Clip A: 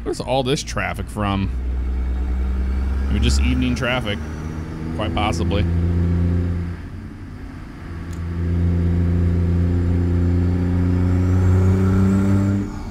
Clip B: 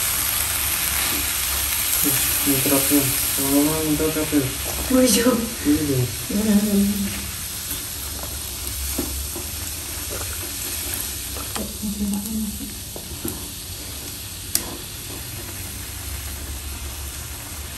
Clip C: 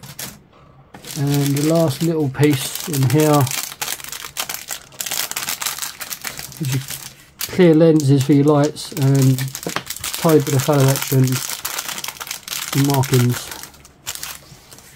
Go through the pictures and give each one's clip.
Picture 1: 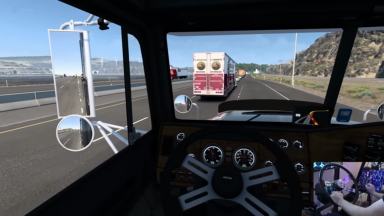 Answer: A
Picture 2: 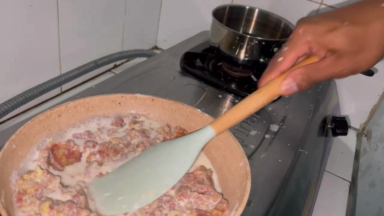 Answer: B